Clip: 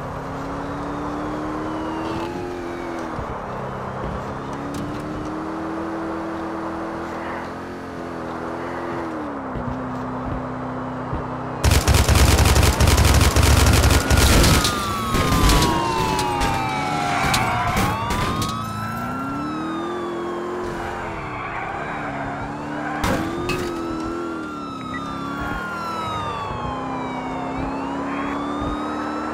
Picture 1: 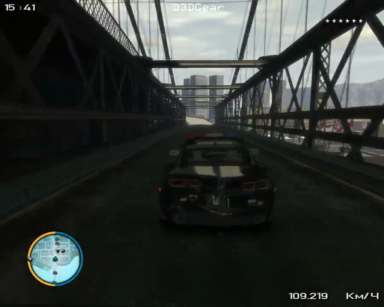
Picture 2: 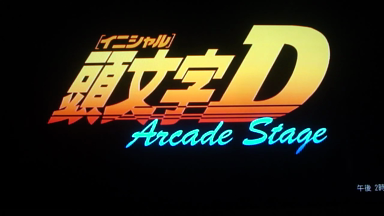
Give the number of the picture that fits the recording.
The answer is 1